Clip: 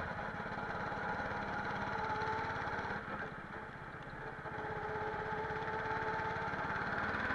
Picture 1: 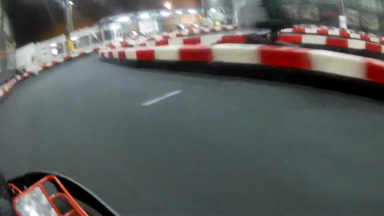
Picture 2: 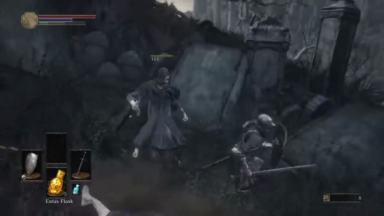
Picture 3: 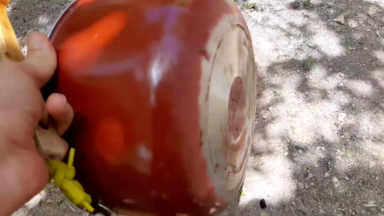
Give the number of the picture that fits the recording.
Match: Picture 1